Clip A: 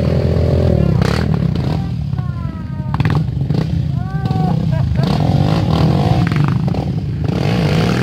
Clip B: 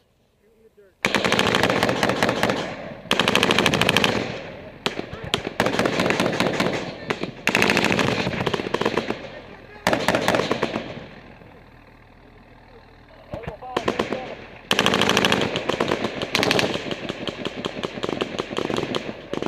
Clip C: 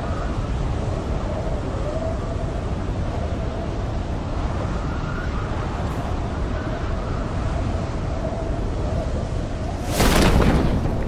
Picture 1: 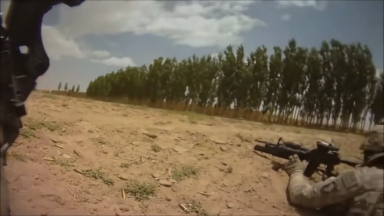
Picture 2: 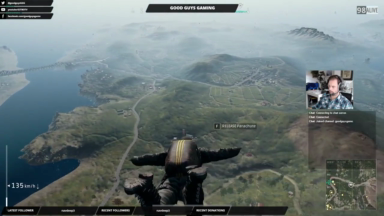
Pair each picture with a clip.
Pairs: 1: B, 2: C